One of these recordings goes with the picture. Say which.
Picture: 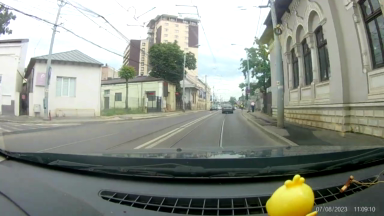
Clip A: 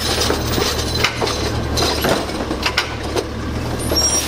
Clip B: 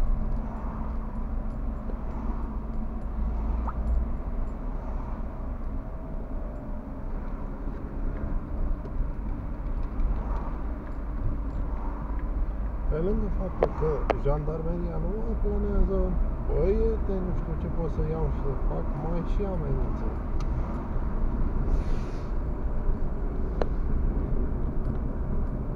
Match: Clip B